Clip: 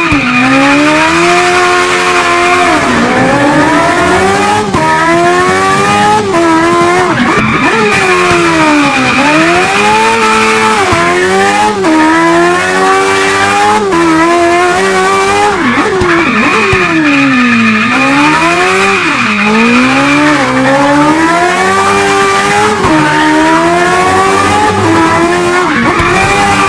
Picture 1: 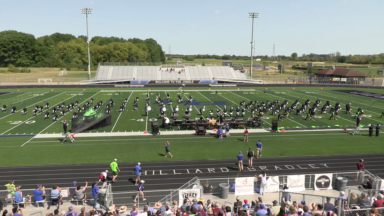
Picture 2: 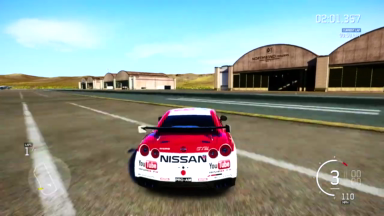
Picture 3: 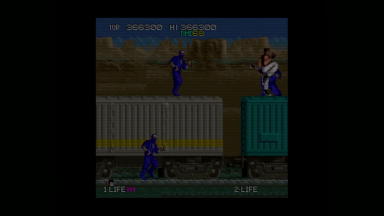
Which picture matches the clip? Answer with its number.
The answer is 2